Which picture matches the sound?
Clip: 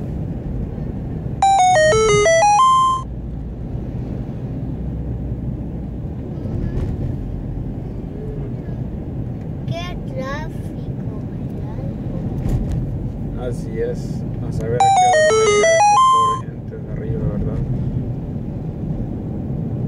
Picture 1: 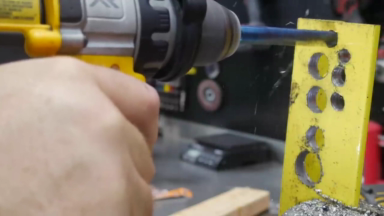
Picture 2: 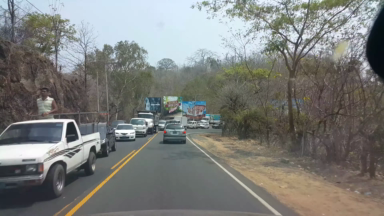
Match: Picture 2